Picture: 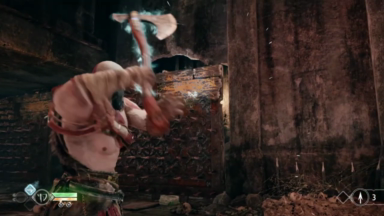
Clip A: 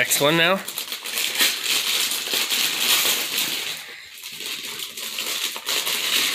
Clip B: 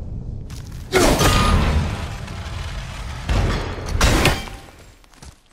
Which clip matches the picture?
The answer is B